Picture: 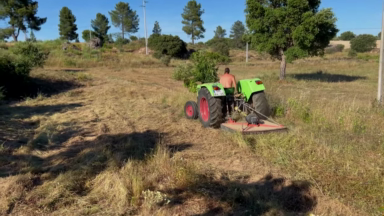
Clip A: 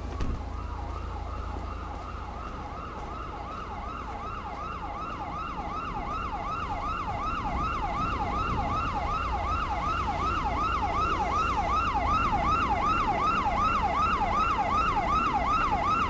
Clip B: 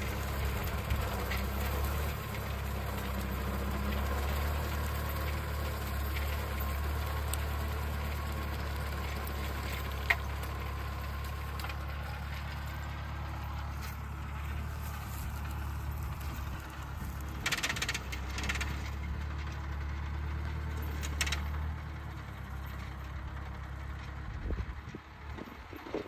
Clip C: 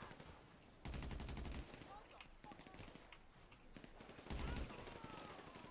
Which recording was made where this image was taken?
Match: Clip B